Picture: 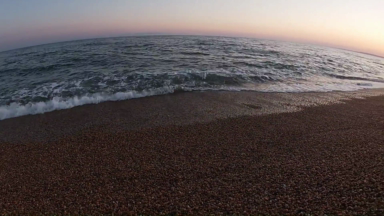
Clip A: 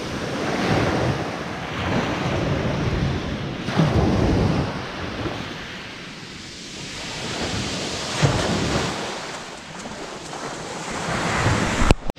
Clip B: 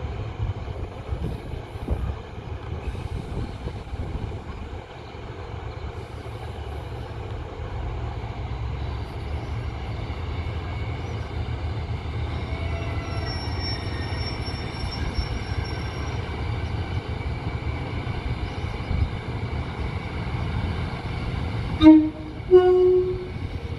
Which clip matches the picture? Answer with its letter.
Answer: A